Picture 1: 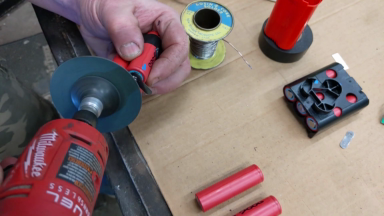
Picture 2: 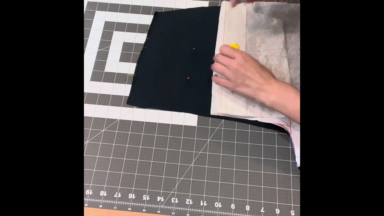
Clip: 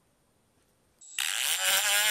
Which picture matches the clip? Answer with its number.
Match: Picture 1